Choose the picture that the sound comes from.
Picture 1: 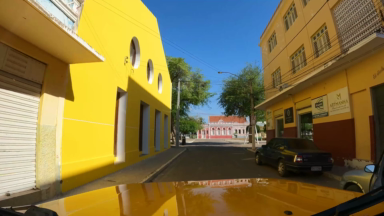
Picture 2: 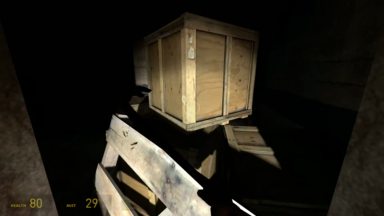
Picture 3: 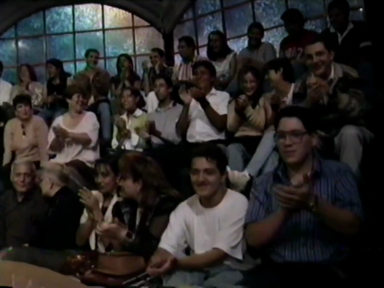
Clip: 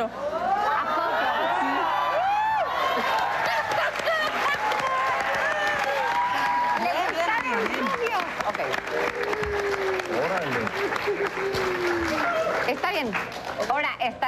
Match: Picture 3